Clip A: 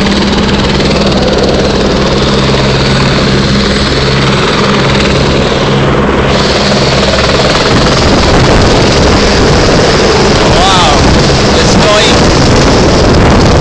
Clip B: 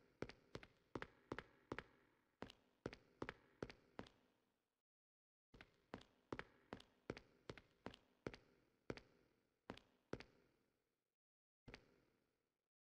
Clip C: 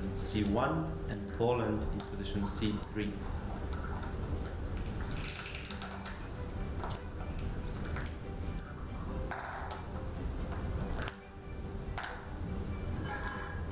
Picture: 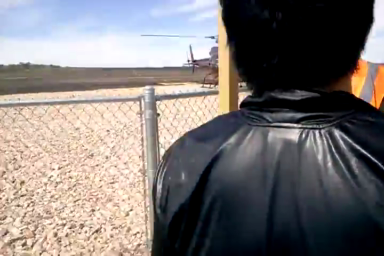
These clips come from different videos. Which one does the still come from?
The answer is A